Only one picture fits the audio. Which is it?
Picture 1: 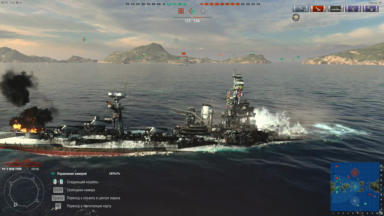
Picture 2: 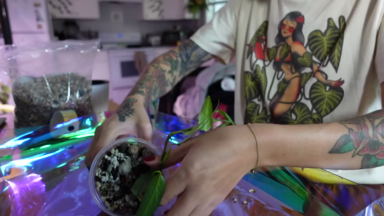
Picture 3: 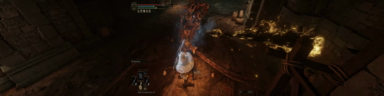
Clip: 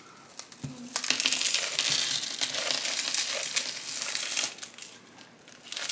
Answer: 2